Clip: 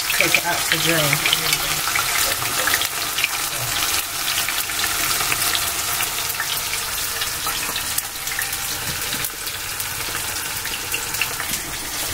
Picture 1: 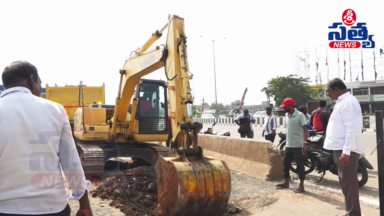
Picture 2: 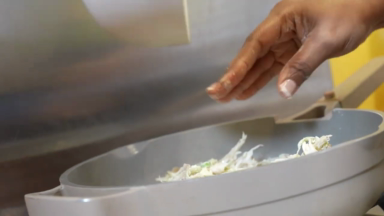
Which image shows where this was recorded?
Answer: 2